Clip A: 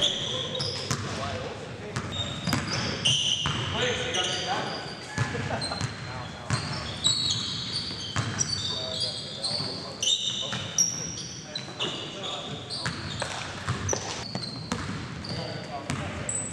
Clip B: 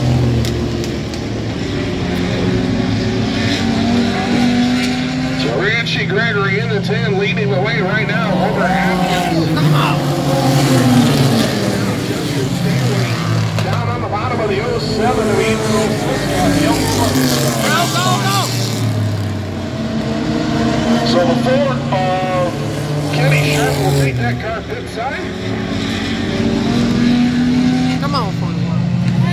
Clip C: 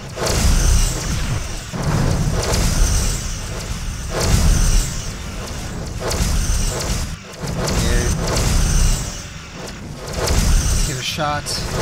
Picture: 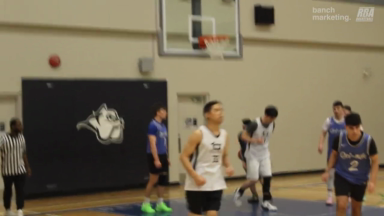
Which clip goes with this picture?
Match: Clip A